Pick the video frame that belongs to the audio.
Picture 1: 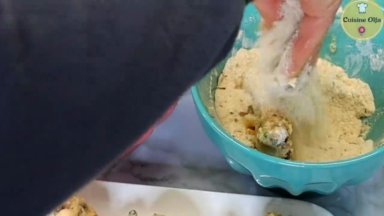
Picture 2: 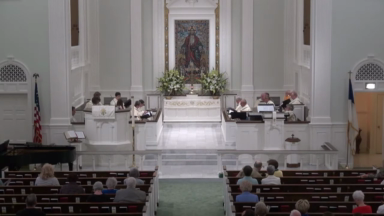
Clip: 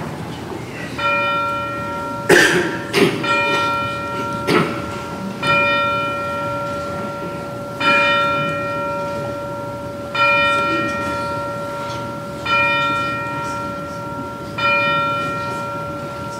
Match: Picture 2